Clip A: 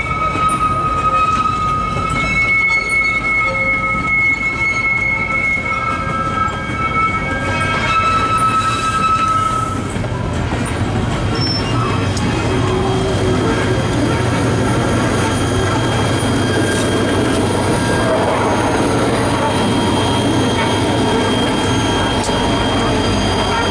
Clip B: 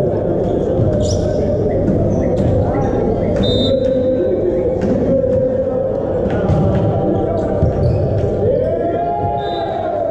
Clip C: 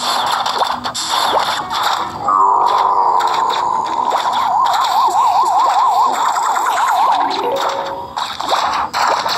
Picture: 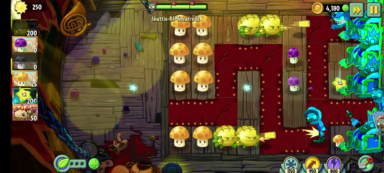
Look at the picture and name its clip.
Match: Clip C